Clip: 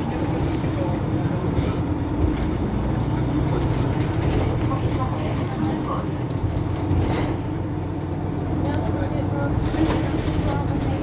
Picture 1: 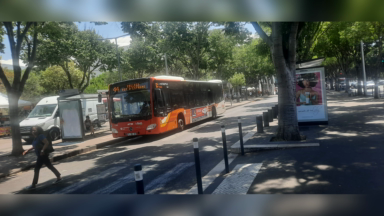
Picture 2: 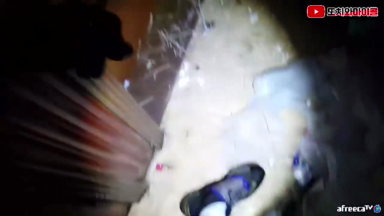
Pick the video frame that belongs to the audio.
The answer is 1